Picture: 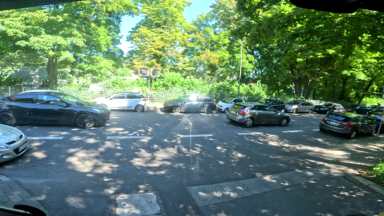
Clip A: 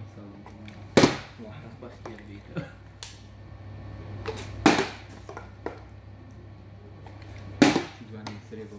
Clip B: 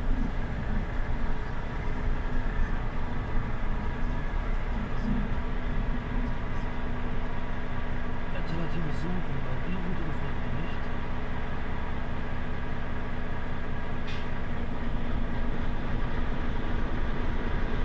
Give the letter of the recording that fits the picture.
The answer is B